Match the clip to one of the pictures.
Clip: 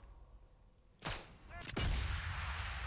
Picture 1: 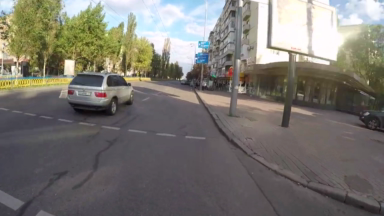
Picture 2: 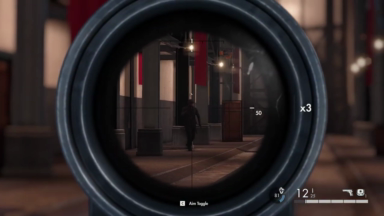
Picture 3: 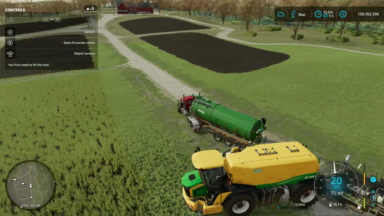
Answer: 2